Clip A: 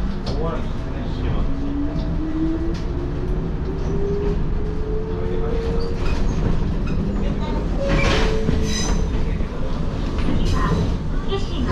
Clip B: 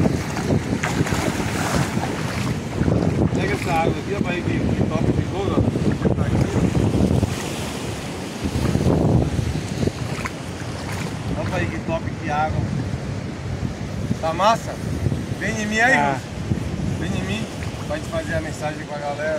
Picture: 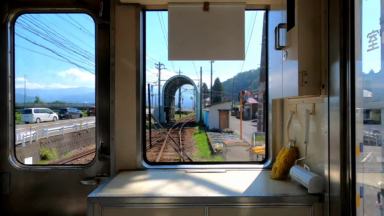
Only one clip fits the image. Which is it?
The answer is A